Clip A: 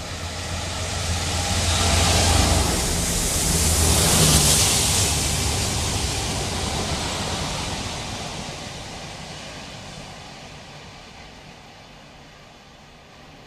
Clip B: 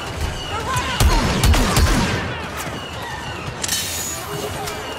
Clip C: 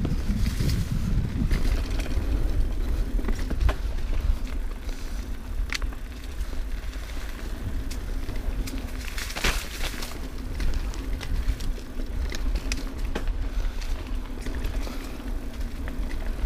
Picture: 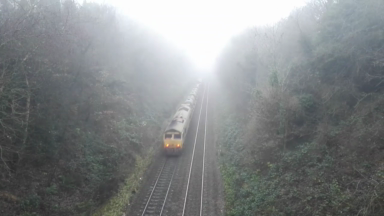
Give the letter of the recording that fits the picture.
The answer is A